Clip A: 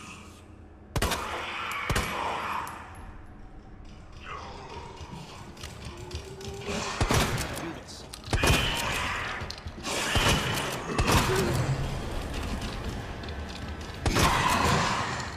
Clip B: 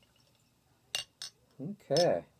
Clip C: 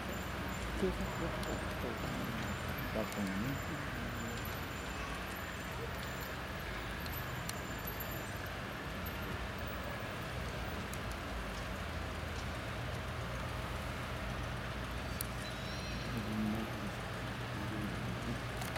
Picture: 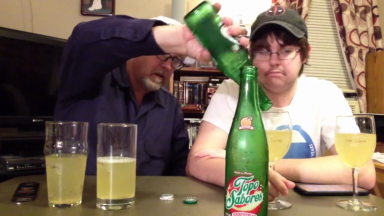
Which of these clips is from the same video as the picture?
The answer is B